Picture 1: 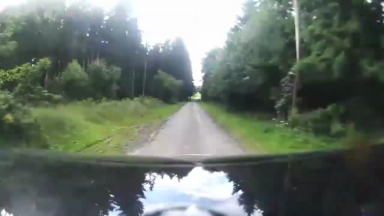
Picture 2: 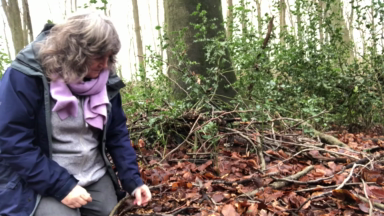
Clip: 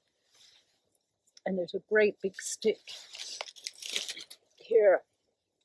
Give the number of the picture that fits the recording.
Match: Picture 2